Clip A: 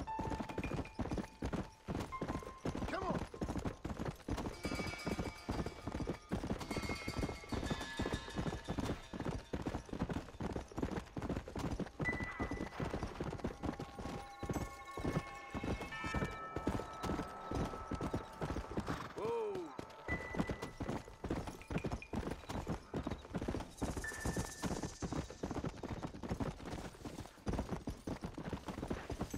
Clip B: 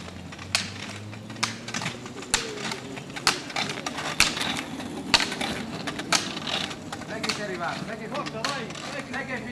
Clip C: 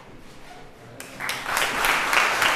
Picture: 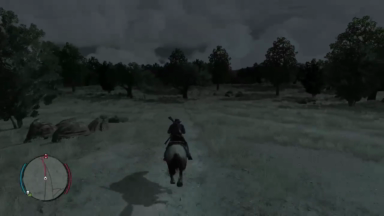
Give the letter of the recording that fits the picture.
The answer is A